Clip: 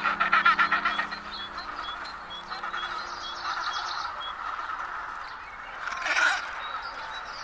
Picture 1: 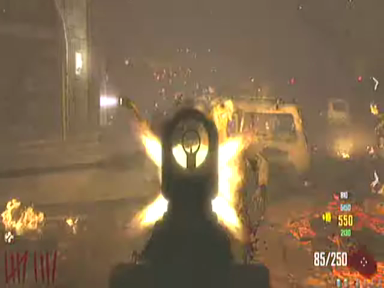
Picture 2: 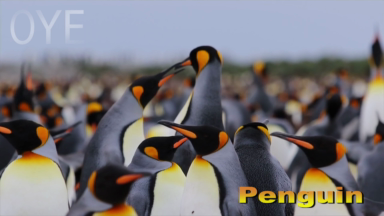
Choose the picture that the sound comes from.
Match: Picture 2